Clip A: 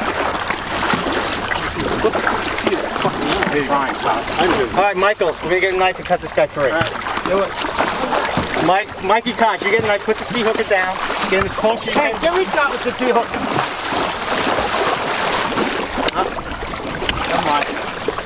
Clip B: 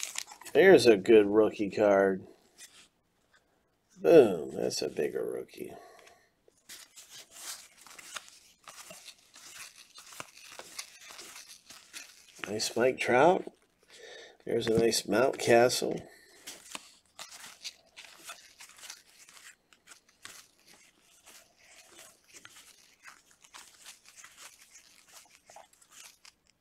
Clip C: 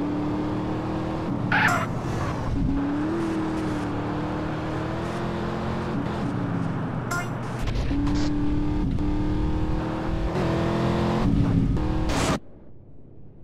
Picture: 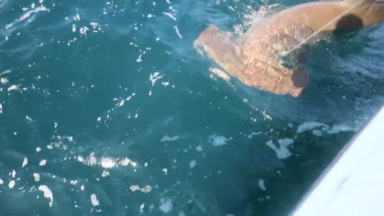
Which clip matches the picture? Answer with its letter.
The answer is A